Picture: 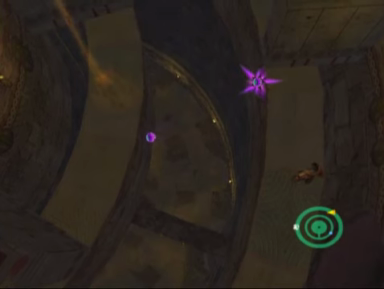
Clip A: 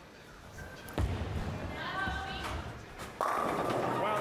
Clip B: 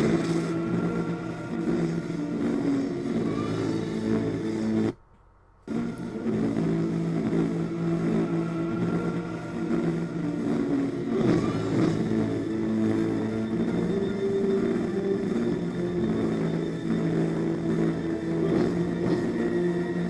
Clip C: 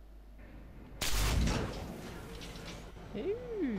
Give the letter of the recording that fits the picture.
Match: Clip B